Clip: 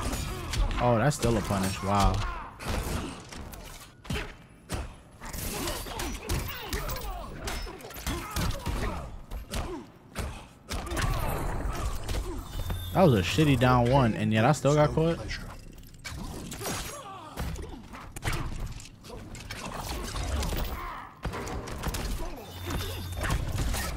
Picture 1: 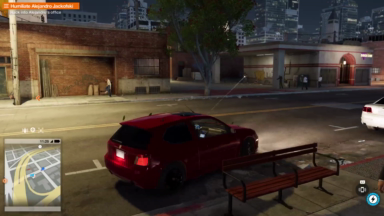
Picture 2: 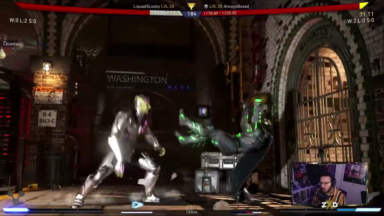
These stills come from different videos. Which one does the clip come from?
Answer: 2